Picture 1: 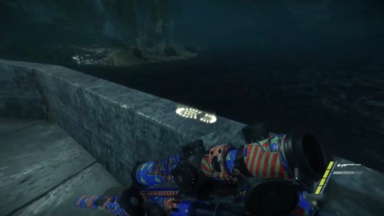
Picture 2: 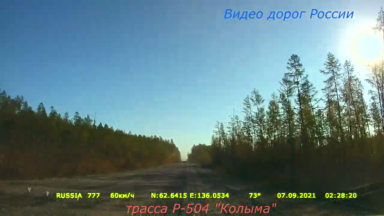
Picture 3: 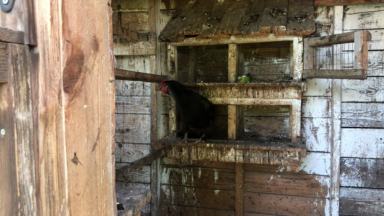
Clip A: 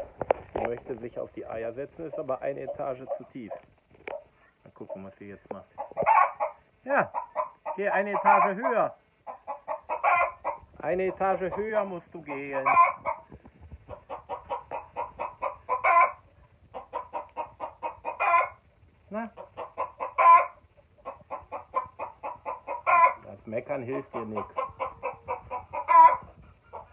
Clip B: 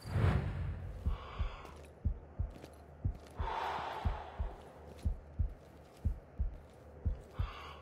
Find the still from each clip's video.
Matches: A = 3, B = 1